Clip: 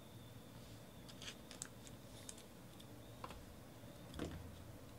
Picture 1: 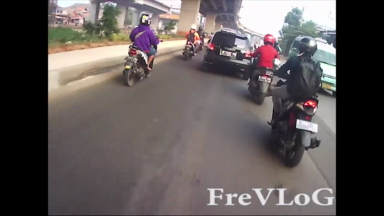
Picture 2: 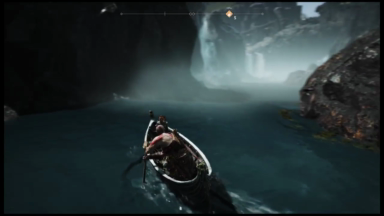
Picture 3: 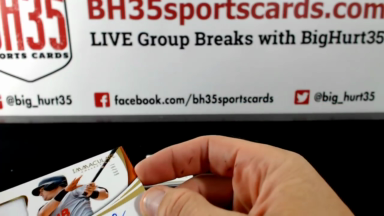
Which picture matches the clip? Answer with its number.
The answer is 3